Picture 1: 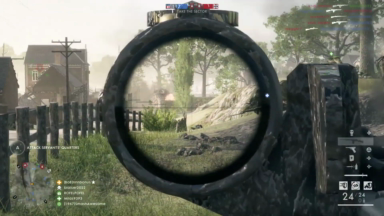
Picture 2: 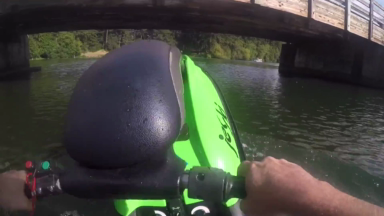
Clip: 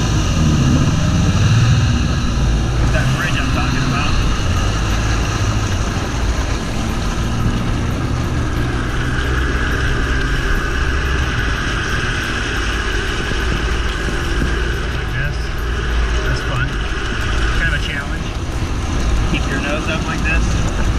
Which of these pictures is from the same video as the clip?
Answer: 2